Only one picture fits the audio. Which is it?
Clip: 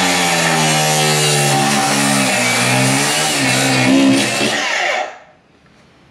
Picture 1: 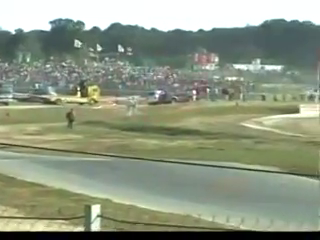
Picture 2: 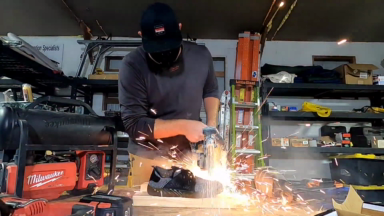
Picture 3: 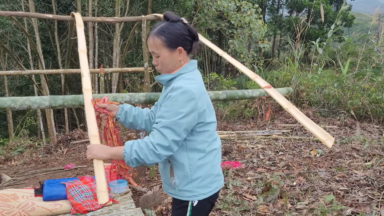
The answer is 2